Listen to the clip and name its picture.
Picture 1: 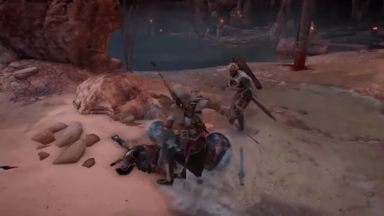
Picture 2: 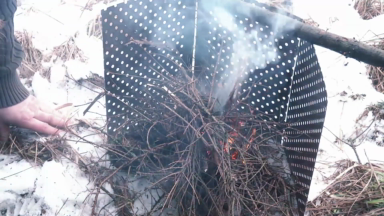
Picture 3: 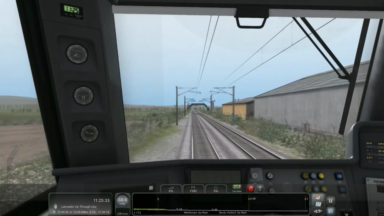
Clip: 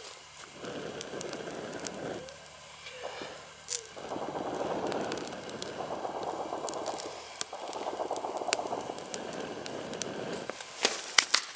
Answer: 2